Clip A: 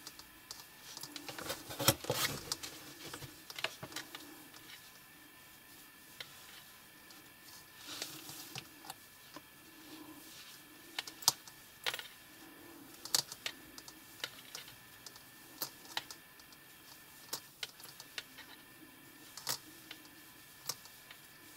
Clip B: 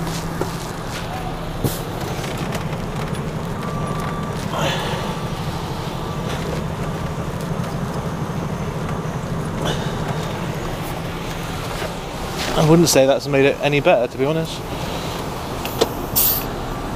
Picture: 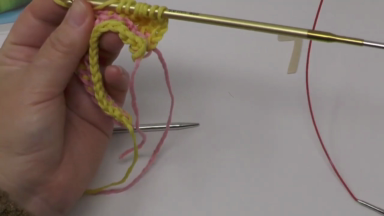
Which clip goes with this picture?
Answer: A